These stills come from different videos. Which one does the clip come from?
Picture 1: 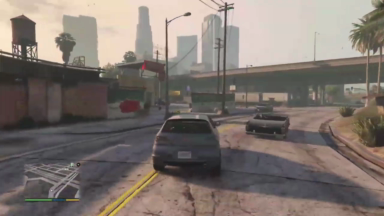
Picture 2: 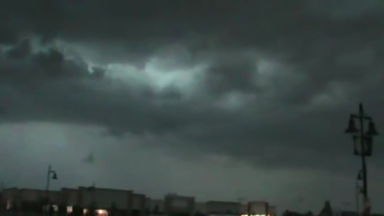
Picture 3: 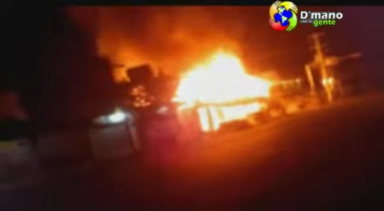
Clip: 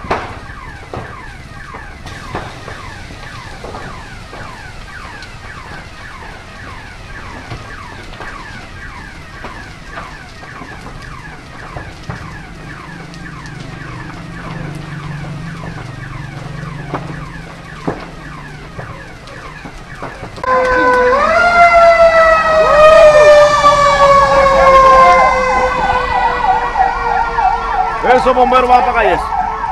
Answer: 3